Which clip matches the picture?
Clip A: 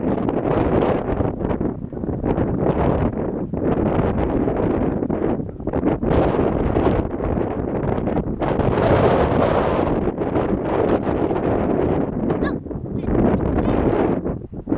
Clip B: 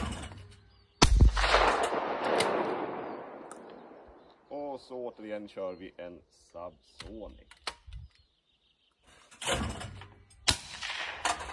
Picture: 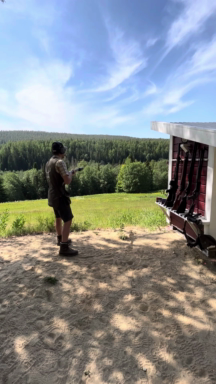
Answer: B